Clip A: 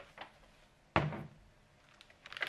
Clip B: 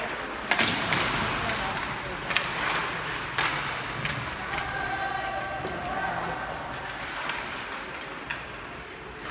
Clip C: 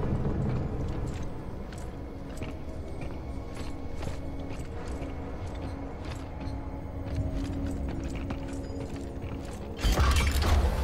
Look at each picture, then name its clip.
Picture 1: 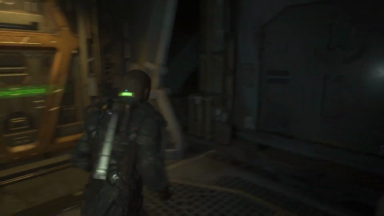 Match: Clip C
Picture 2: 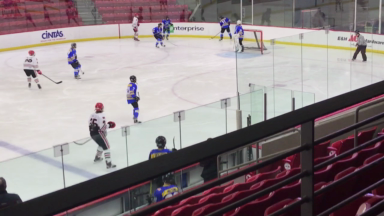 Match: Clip B